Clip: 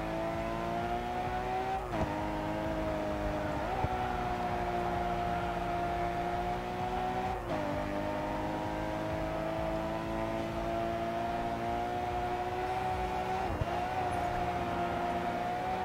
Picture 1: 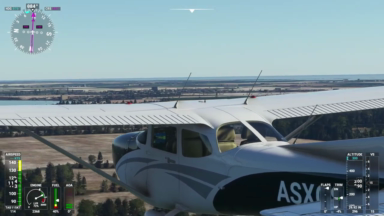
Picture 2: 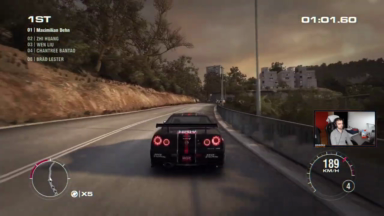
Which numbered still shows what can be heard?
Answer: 2